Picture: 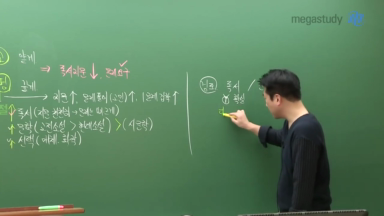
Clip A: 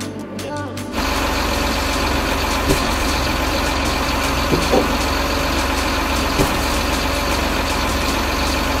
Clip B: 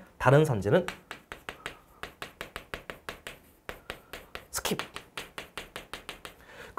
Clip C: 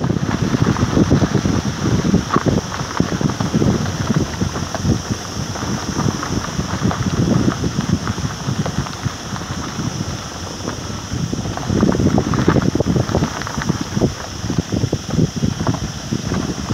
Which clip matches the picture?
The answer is B